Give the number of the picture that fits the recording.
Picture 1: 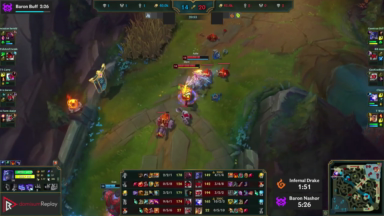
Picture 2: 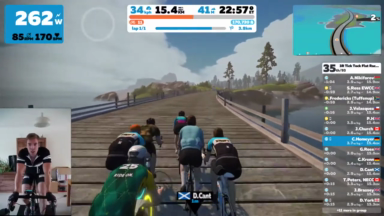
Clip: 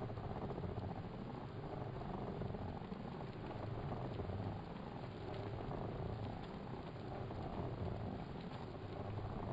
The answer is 2